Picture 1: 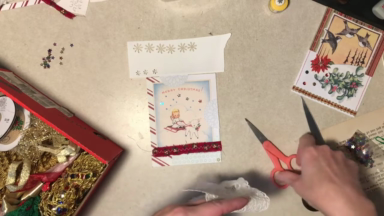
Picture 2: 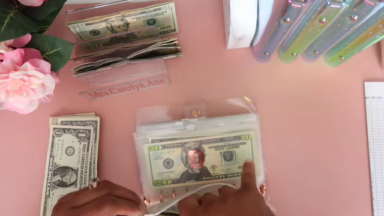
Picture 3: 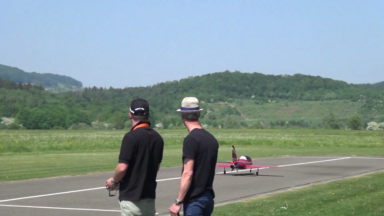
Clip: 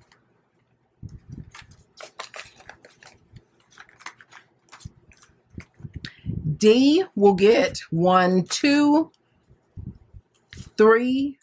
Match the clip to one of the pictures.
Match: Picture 2